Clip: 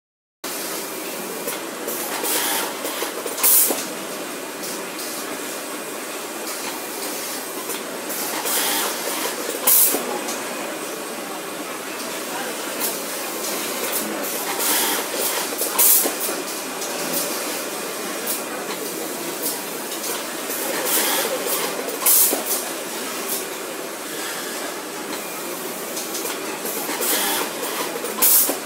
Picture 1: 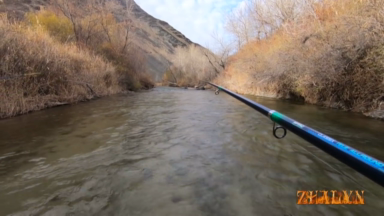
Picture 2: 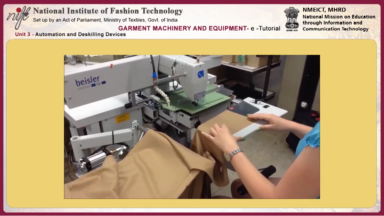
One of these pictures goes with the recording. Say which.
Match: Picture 2